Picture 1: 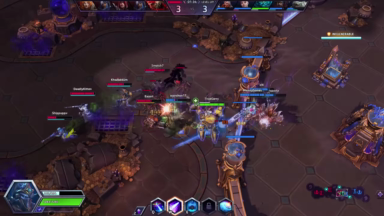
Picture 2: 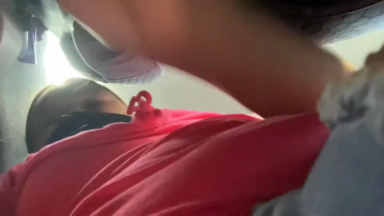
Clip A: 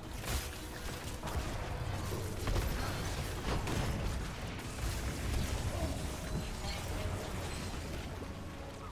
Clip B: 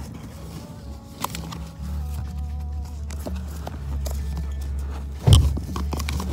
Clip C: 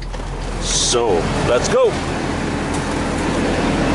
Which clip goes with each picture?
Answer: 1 A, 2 B